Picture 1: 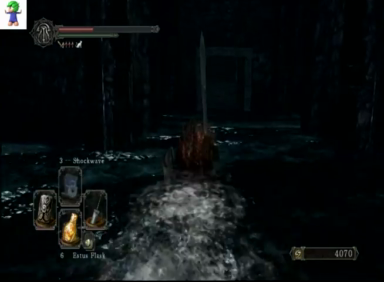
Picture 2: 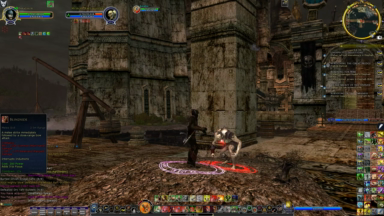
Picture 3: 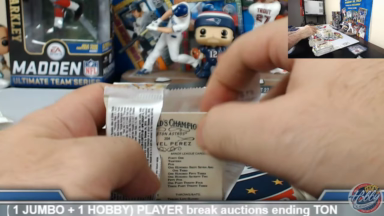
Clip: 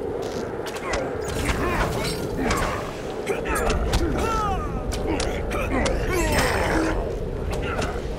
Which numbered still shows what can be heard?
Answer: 2